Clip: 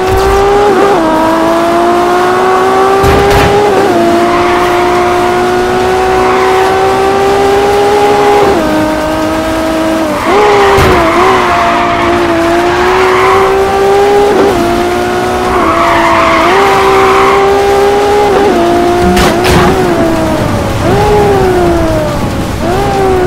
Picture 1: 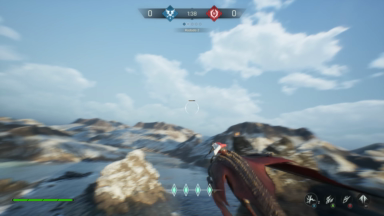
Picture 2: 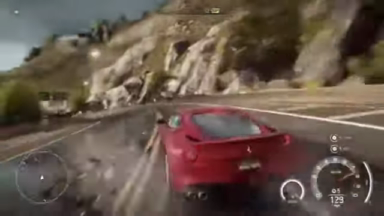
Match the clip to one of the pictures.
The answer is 2